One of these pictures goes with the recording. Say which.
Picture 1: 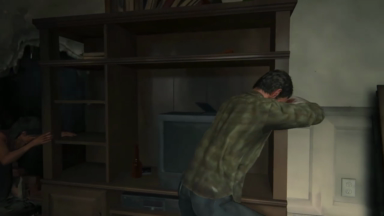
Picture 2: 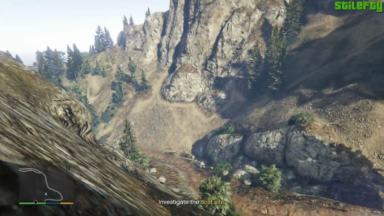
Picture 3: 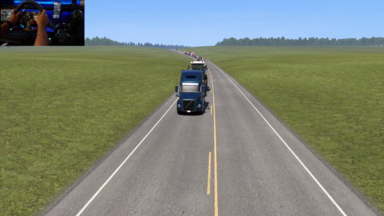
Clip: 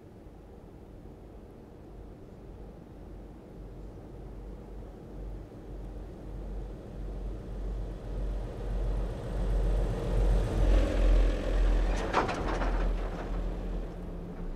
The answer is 3